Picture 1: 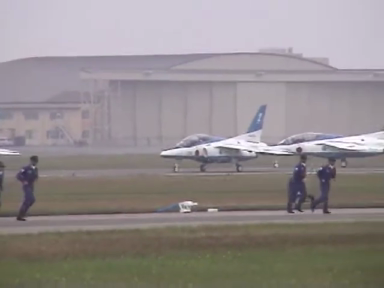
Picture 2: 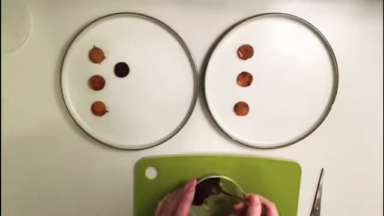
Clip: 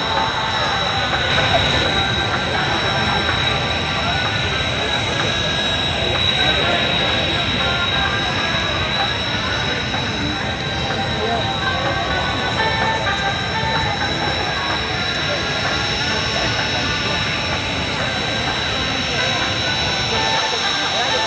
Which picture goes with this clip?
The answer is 1